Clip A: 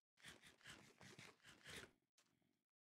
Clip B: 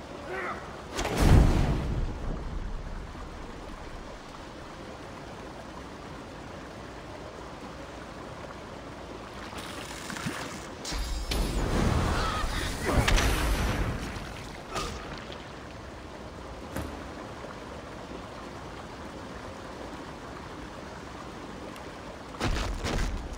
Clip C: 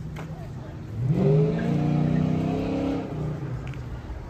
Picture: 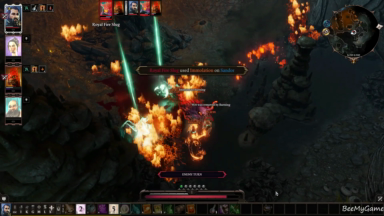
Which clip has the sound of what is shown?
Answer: B